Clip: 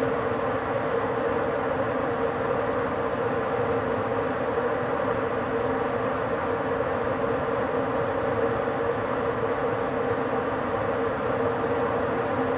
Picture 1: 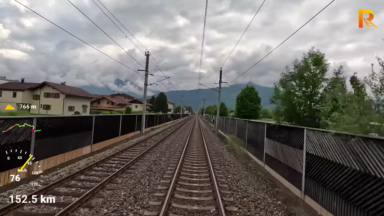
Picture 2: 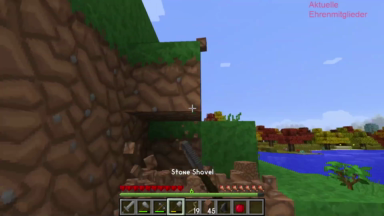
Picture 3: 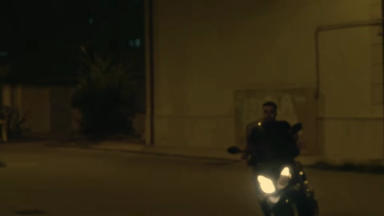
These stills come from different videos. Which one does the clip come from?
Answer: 1